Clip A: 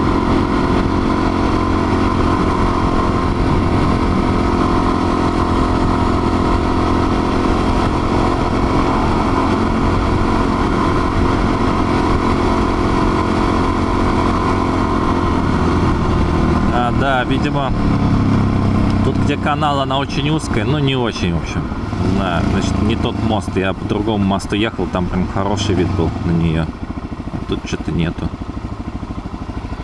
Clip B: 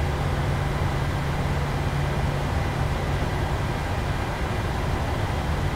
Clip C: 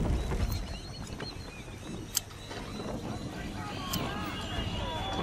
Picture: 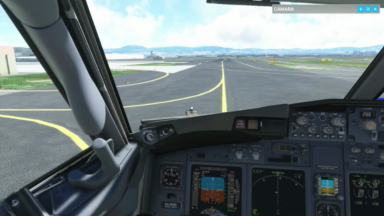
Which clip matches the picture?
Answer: B